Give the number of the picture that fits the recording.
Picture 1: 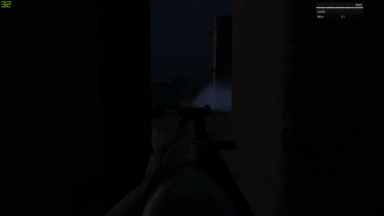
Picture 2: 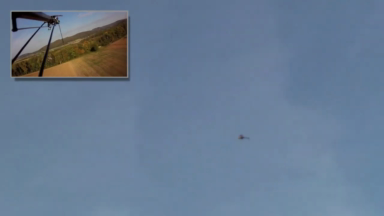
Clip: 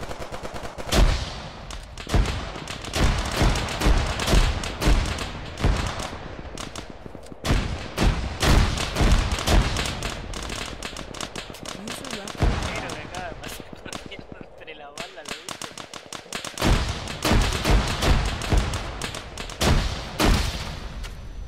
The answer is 1